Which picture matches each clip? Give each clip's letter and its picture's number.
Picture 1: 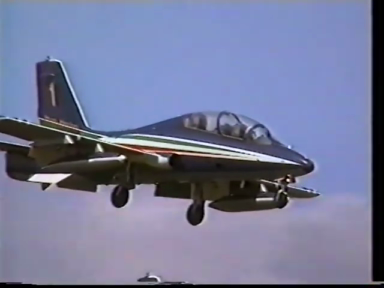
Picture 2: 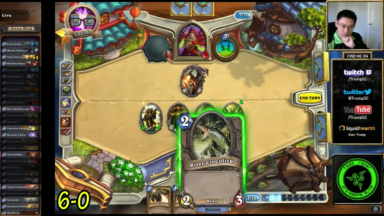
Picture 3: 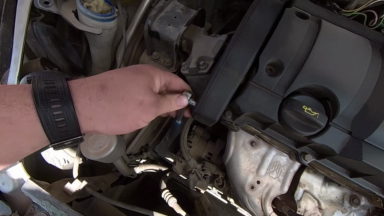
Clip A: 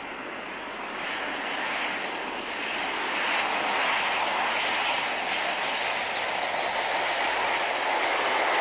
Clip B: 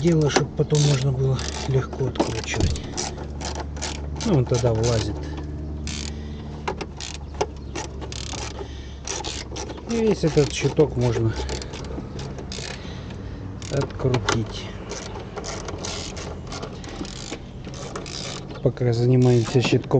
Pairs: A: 1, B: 3